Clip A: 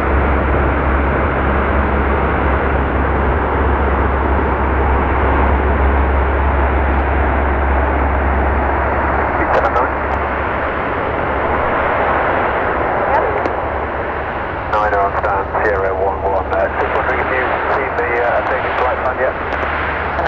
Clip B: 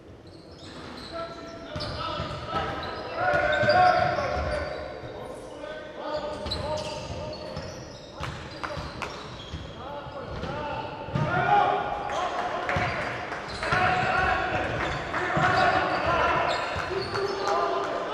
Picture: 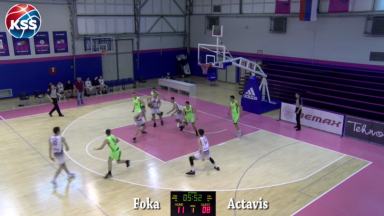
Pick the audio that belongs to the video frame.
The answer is B